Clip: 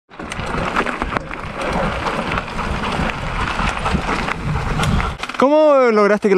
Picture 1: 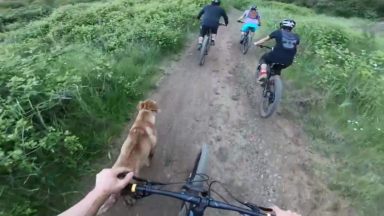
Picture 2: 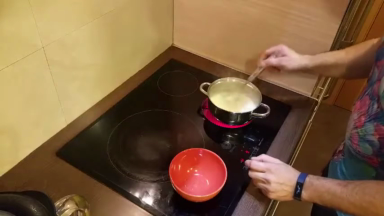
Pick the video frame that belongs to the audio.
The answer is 1